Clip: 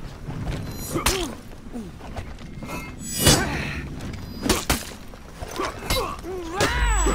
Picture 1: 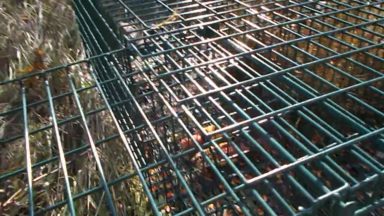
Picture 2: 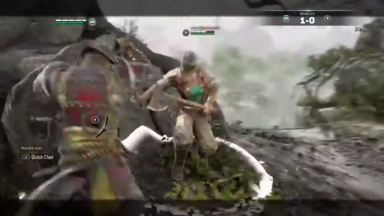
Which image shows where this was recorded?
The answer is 2